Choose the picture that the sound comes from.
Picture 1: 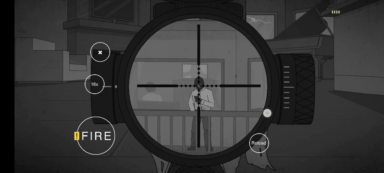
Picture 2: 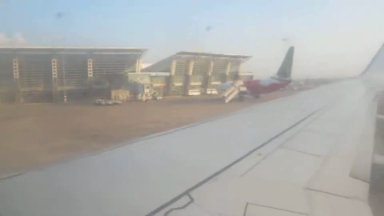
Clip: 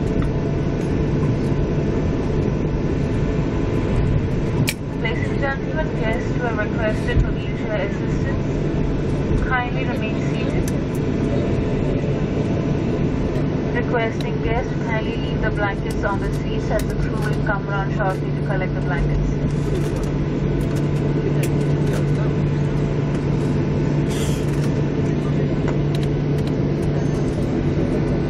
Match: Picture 2